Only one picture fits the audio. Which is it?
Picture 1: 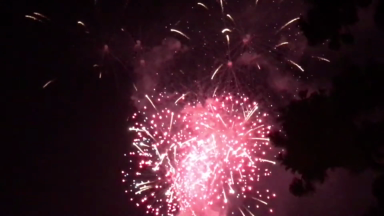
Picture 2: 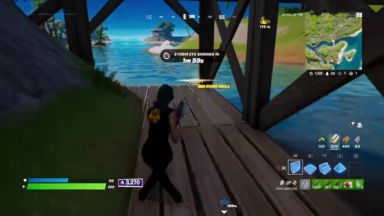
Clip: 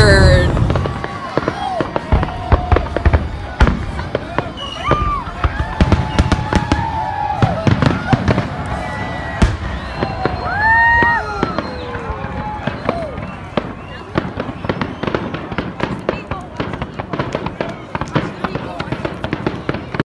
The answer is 1